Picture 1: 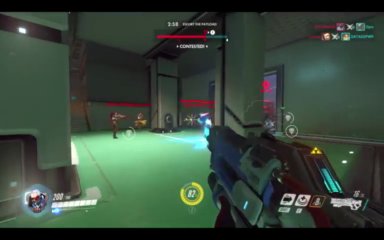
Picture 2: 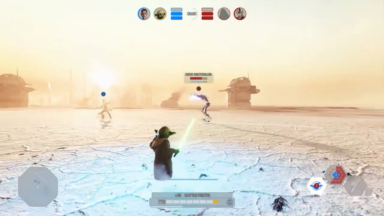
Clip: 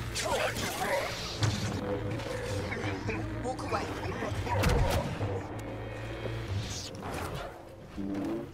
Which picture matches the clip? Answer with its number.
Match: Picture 2